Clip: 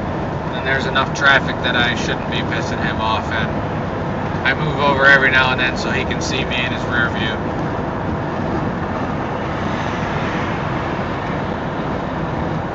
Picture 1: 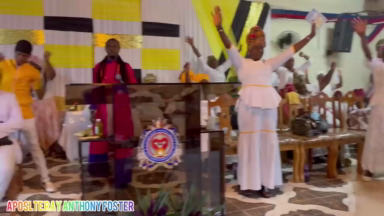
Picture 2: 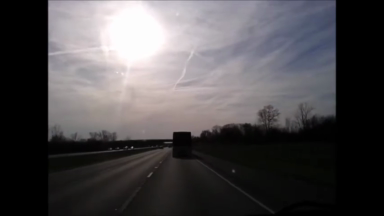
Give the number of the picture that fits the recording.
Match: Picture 2